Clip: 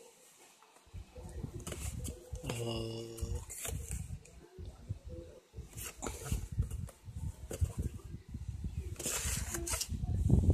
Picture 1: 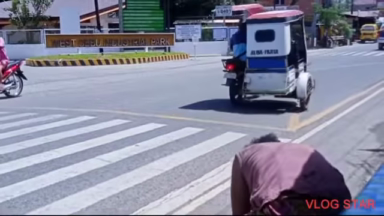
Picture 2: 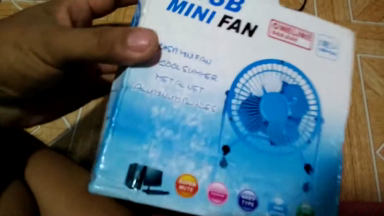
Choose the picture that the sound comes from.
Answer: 2